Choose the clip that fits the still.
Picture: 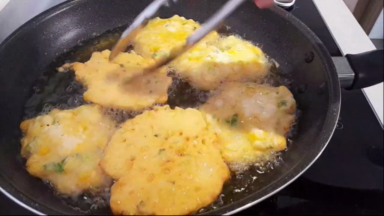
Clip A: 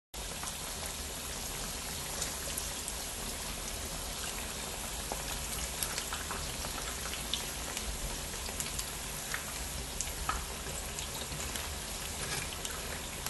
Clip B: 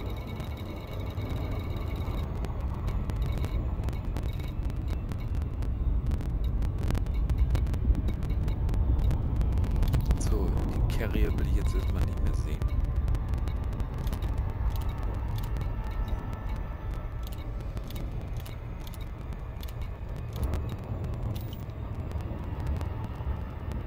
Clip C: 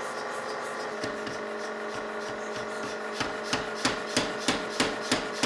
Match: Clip A